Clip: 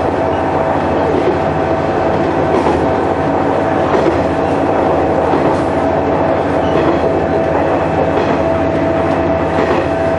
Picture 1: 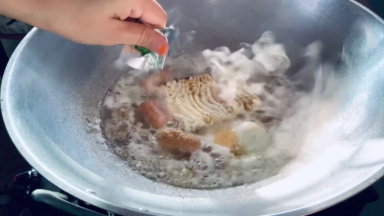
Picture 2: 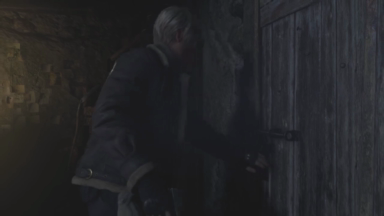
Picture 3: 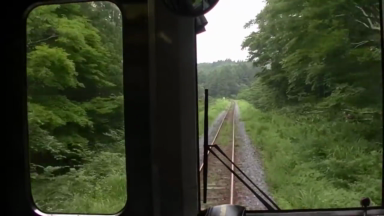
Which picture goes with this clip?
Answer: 3